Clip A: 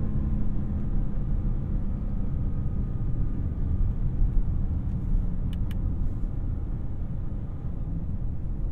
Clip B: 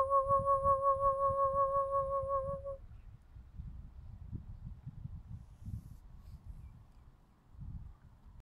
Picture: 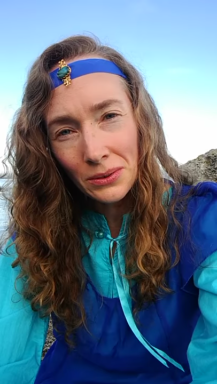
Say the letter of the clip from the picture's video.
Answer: B